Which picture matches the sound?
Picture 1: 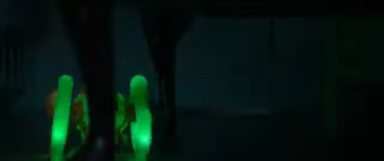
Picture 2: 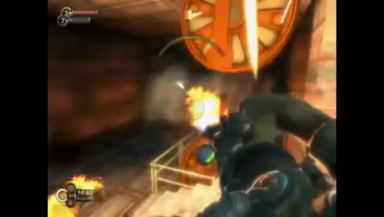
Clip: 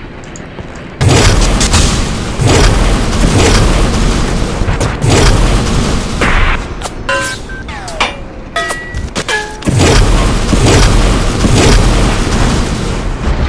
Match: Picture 2